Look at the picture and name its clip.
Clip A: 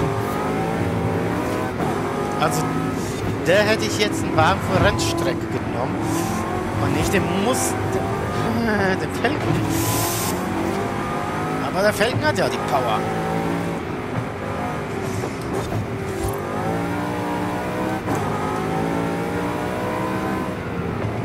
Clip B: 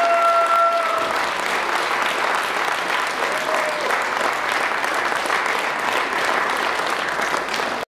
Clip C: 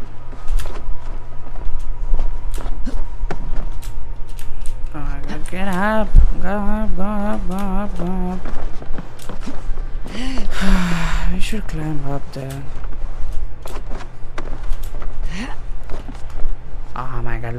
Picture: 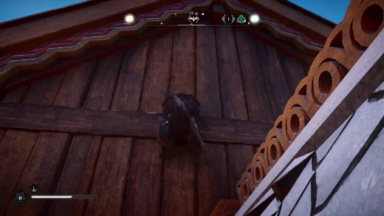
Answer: C